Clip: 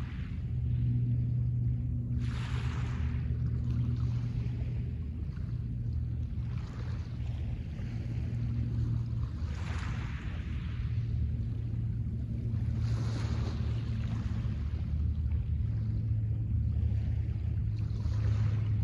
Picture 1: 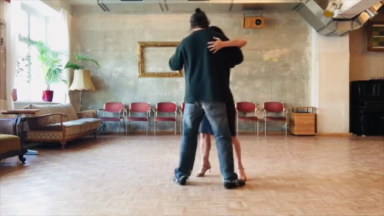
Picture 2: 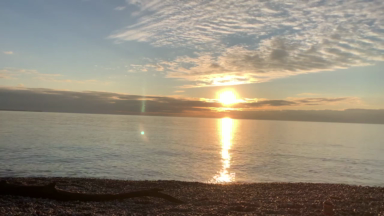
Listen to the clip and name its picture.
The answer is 2